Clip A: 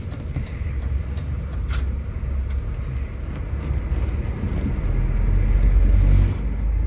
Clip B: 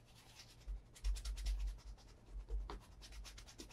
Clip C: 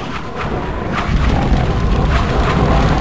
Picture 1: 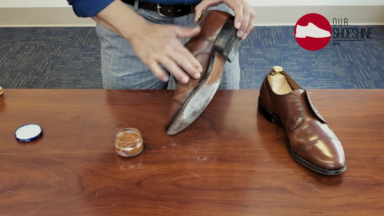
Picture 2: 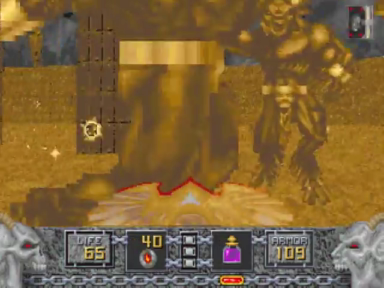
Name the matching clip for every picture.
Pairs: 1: B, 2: C